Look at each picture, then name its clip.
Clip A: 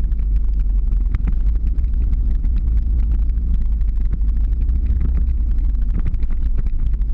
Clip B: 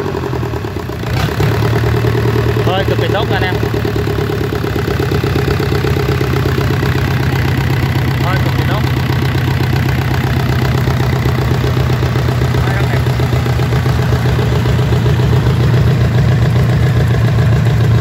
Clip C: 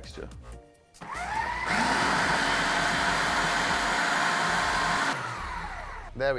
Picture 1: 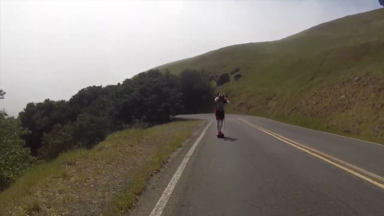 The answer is A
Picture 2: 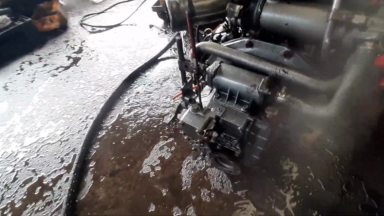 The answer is B